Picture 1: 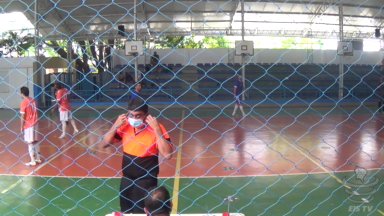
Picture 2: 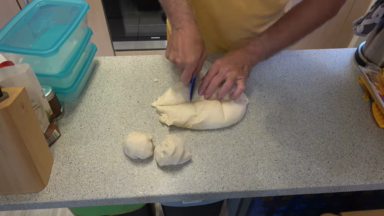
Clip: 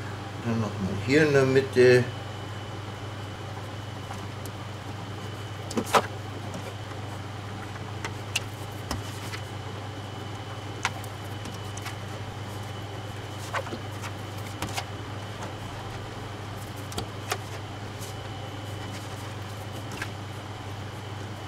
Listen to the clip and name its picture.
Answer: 2